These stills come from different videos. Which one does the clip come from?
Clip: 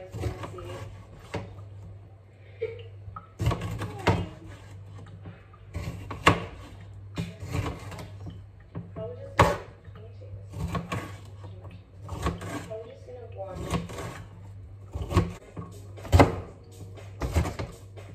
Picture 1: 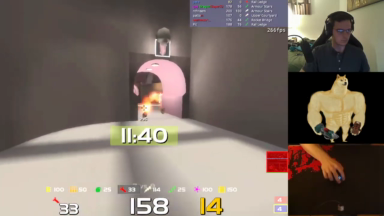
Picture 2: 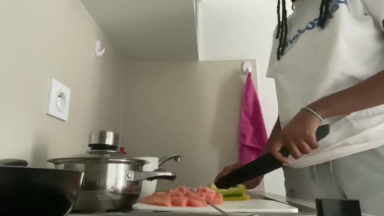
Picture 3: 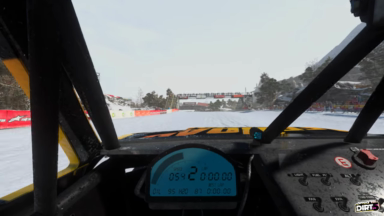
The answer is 2